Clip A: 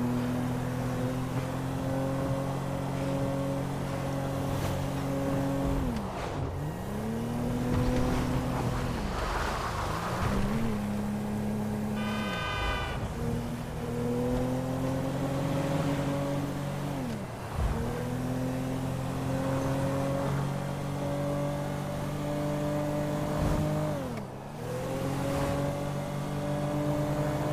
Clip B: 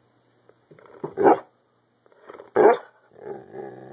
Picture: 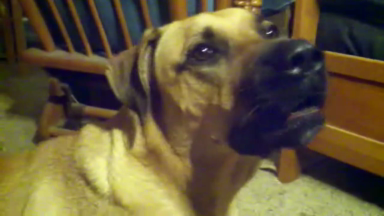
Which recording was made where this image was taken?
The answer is B